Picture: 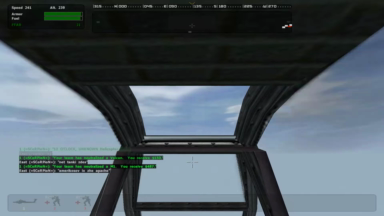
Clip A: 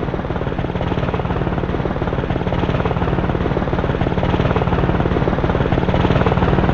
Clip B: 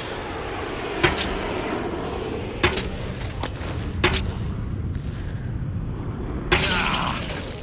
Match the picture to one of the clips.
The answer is A